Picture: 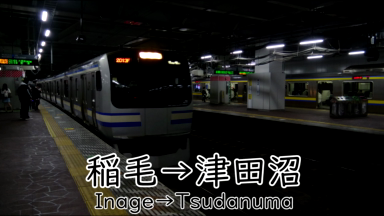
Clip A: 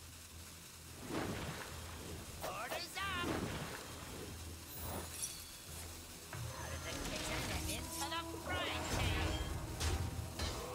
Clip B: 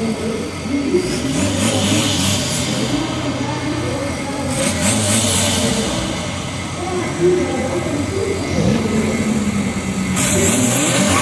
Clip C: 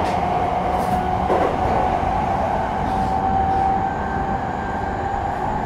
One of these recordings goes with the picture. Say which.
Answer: C